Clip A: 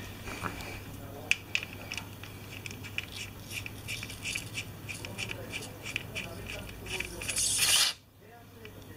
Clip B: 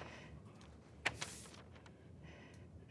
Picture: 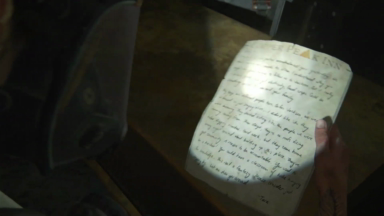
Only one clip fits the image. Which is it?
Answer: B